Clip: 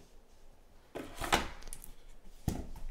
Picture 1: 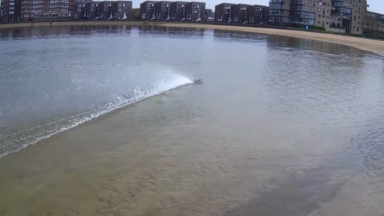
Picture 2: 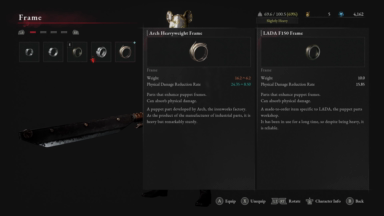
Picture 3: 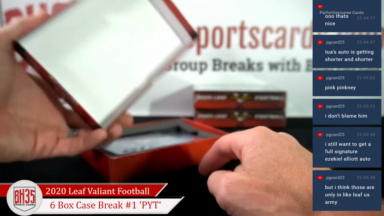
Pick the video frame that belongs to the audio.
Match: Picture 3